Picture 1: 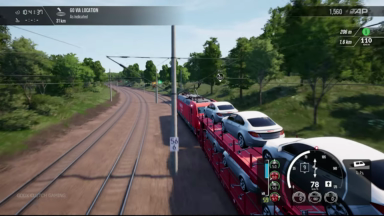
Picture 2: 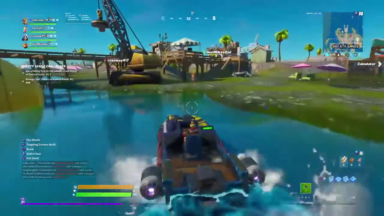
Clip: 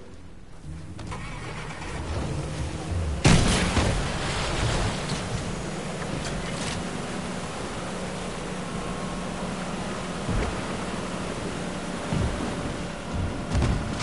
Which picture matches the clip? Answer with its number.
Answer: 2